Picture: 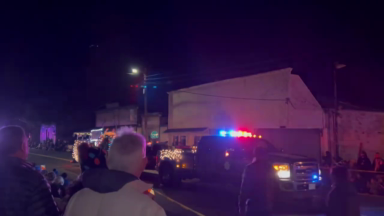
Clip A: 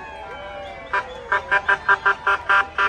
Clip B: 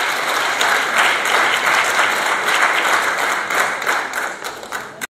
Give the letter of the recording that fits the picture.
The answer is A